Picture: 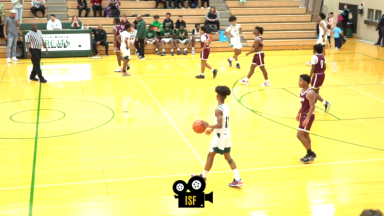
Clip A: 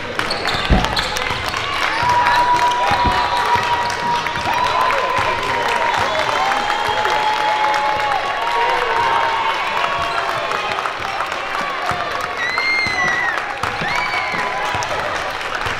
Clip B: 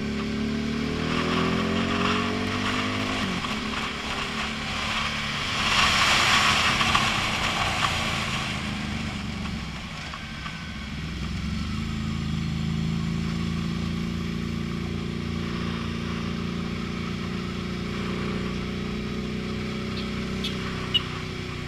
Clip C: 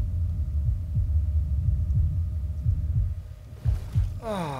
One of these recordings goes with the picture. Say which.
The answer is A